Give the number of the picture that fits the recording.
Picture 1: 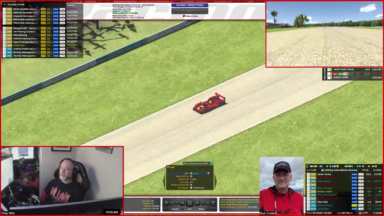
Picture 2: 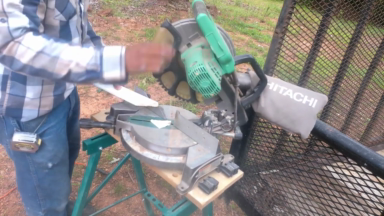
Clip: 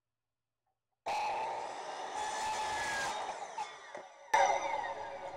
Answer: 2